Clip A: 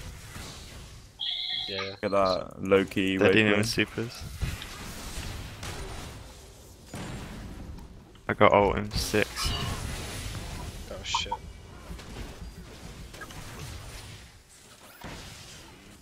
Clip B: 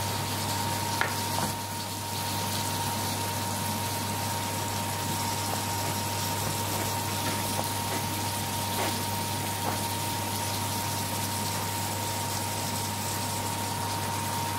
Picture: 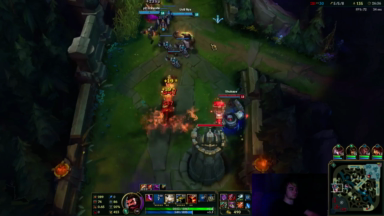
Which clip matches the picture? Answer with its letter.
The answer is A